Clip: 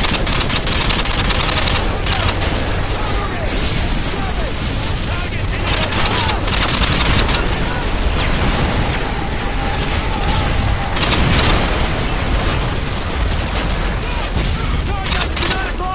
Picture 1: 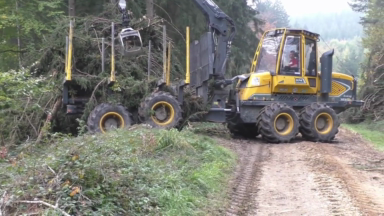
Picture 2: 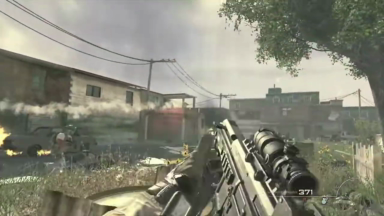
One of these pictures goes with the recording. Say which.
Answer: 2